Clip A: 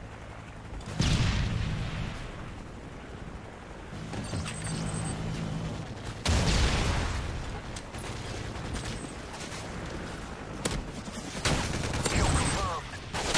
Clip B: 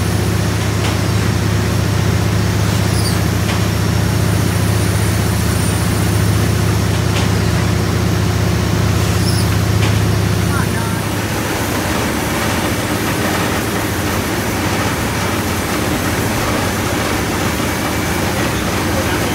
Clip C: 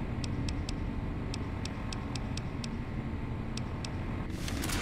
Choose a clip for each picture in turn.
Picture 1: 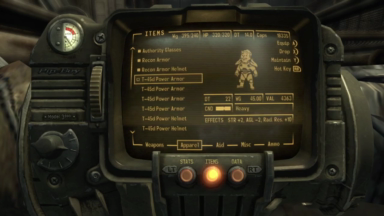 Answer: C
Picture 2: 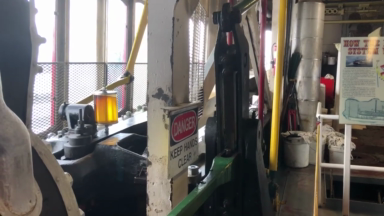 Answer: B